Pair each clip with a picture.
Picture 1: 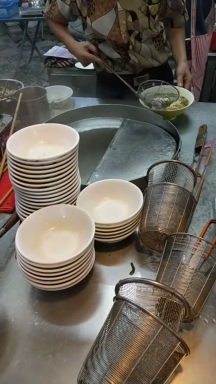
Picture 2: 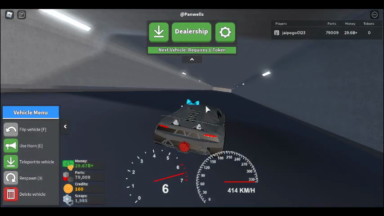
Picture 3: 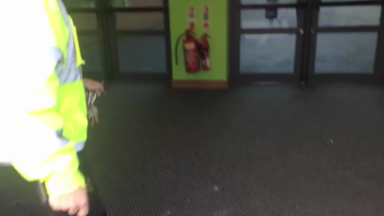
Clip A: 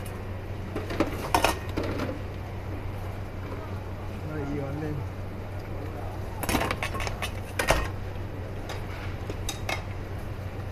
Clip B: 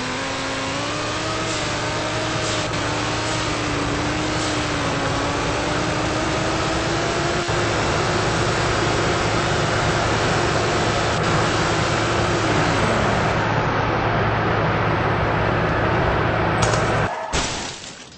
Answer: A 1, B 2